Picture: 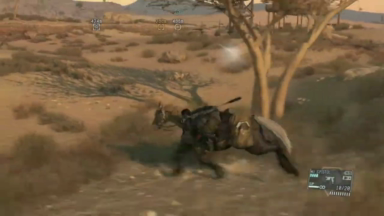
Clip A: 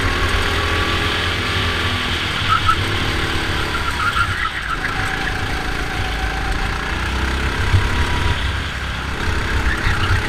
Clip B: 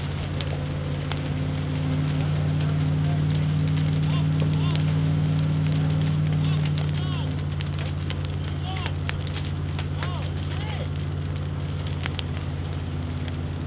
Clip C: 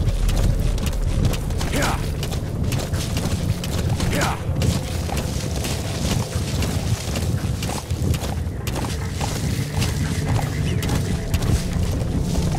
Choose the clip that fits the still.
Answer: C